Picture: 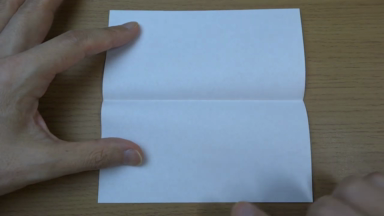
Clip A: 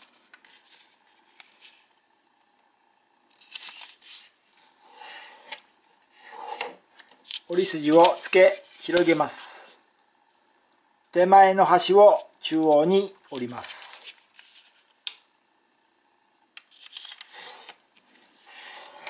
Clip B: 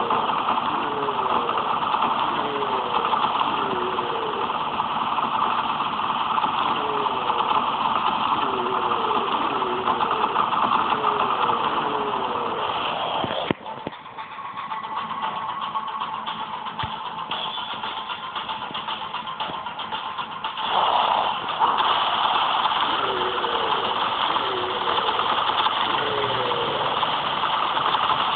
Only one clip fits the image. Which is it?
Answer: A